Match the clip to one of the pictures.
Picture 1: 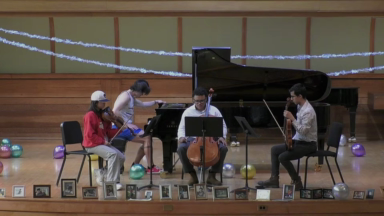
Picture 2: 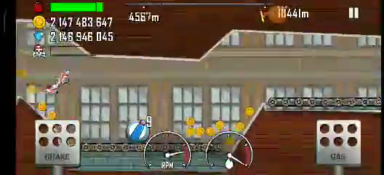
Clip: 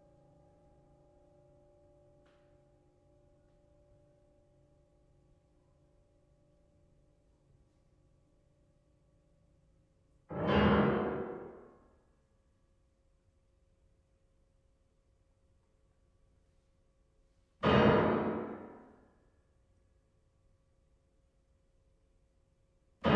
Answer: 1